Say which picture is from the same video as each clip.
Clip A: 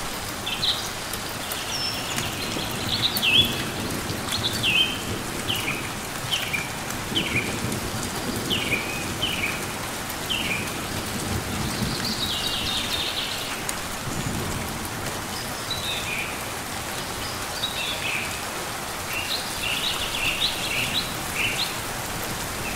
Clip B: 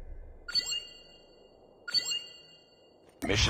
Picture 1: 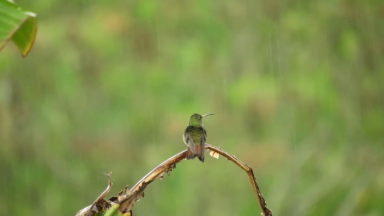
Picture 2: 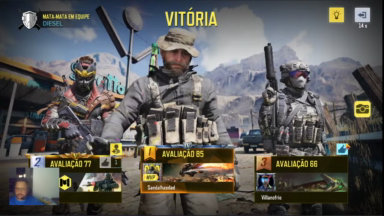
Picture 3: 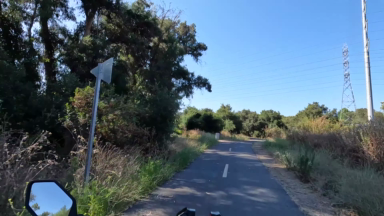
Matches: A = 1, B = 2